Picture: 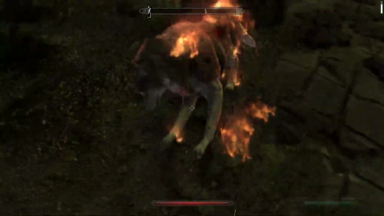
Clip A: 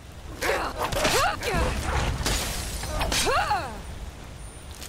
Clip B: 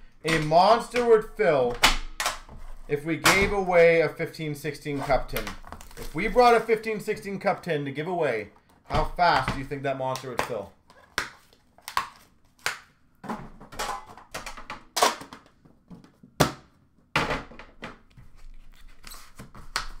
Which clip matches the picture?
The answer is A